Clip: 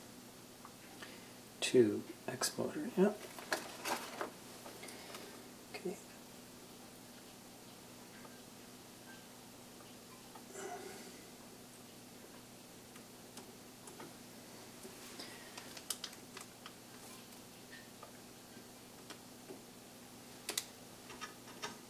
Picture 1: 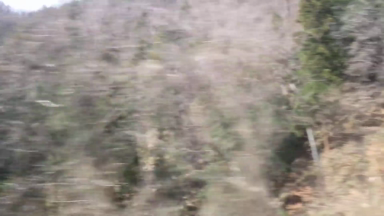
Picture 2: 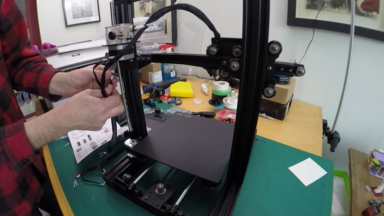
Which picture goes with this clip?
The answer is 2